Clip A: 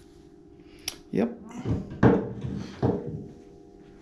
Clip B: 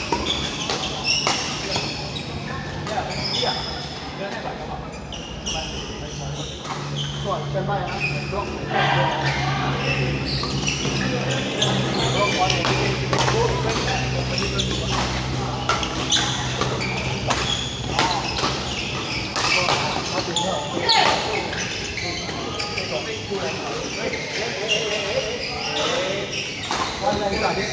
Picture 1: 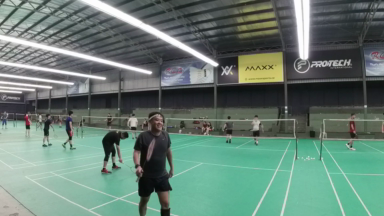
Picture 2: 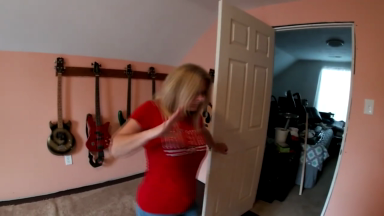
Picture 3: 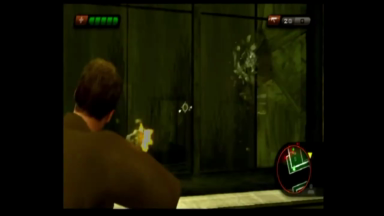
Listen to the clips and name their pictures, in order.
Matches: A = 2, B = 1